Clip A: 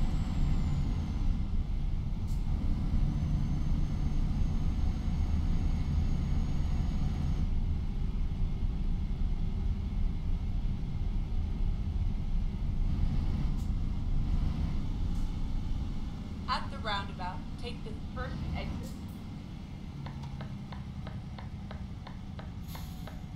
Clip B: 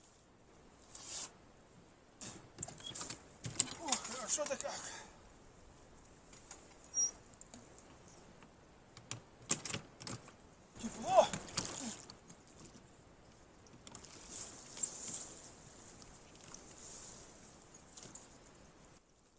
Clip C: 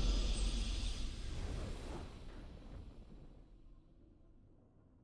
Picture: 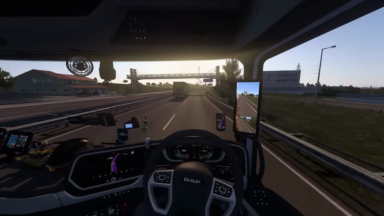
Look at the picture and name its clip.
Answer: A